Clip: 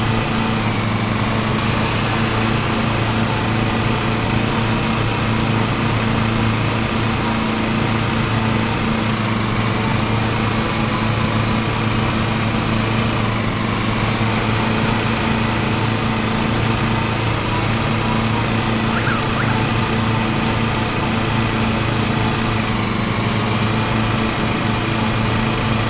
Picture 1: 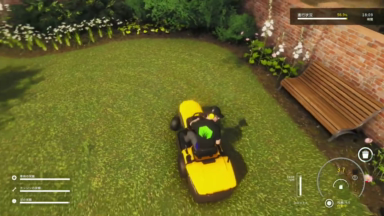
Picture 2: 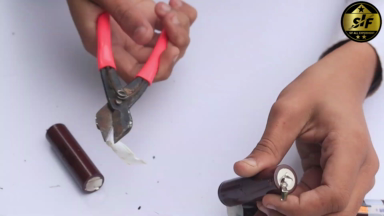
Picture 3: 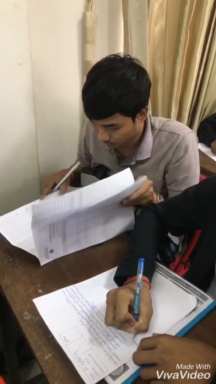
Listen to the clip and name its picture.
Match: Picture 1